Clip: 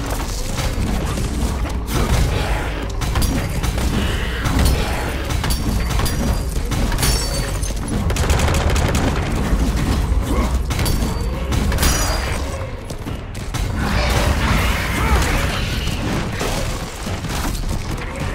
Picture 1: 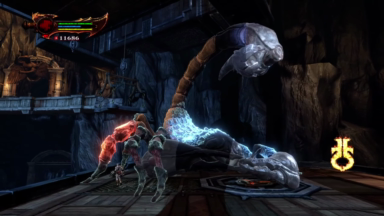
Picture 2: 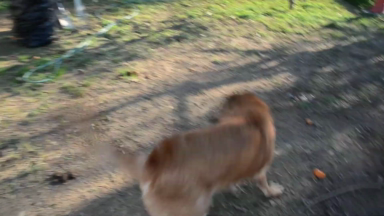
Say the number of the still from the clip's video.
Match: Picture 1